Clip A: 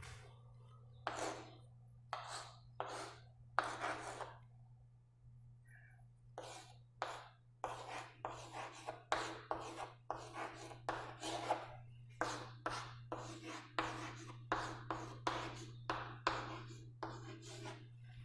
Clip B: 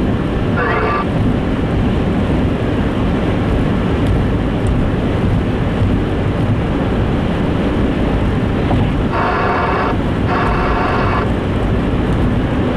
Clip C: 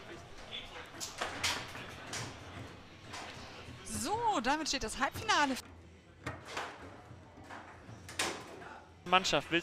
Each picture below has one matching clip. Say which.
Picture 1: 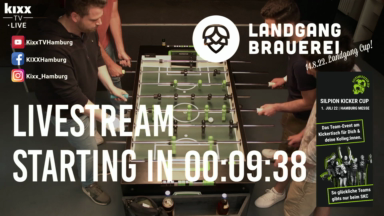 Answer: C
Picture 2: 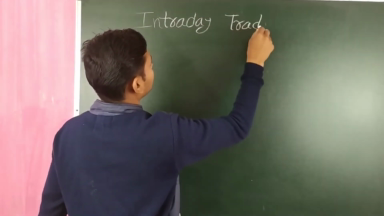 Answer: A